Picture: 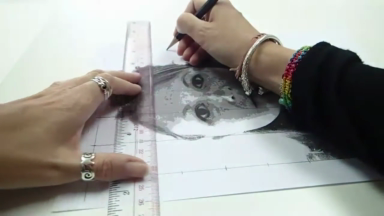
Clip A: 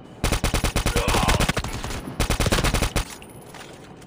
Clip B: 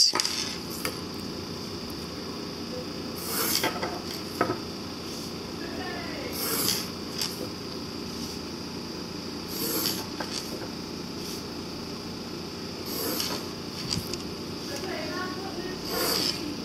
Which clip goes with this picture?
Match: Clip B